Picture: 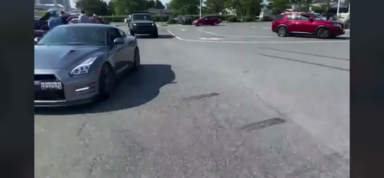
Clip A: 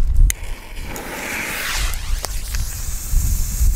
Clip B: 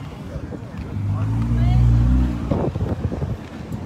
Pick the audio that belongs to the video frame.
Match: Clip B